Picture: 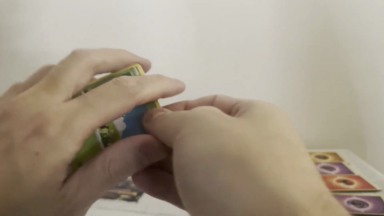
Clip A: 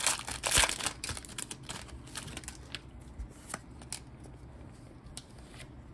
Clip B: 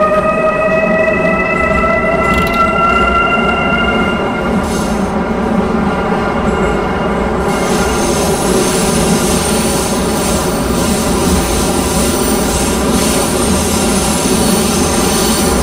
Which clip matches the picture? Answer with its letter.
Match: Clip A